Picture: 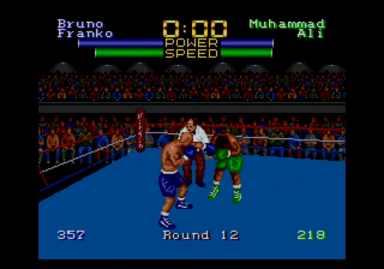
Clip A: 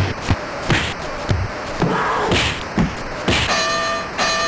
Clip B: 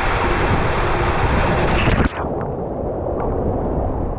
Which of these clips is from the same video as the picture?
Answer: A